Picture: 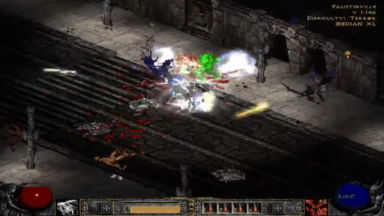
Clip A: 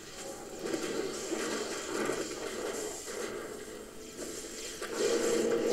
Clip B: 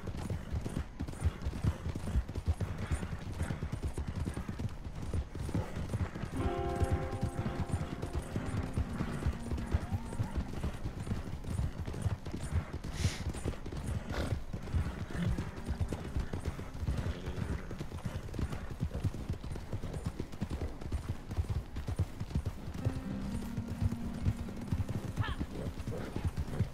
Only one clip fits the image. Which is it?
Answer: A